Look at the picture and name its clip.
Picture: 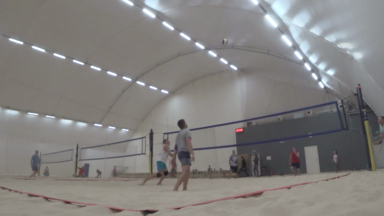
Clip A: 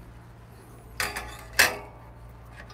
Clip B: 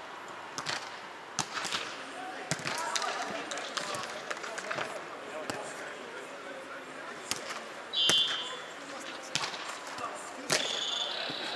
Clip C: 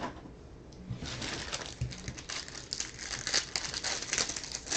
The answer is B